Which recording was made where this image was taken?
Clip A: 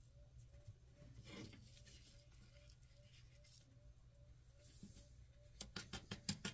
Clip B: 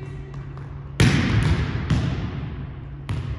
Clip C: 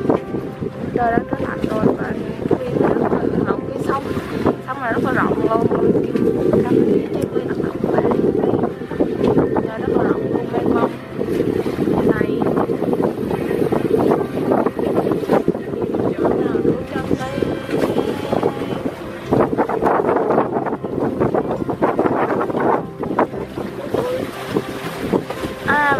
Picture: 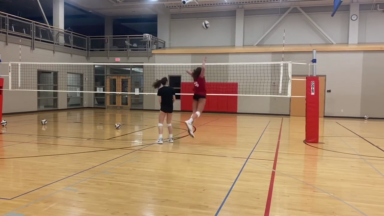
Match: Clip B